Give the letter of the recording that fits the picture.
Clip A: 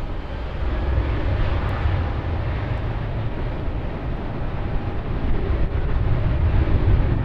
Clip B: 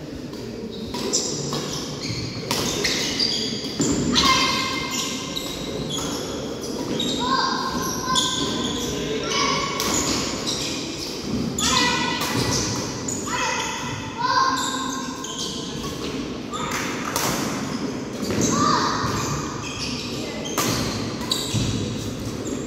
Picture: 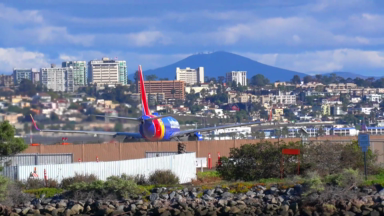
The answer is A